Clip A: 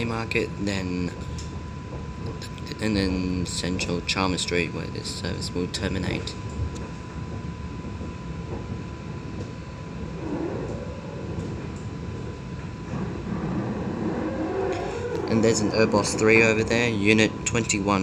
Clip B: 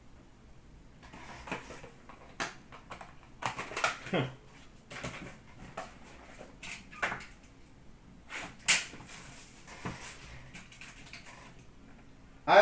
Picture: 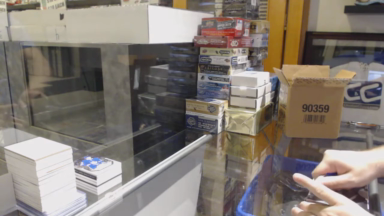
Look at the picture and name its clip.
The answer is B